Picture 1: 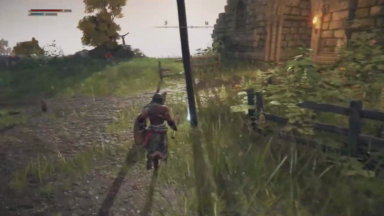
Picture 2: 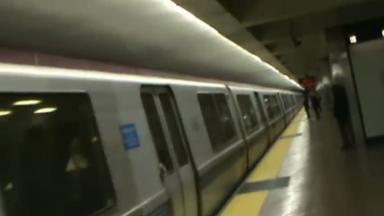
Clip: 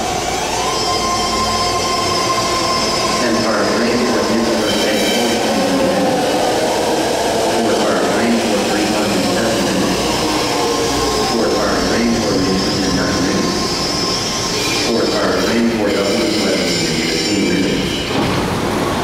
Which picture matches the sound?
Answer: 2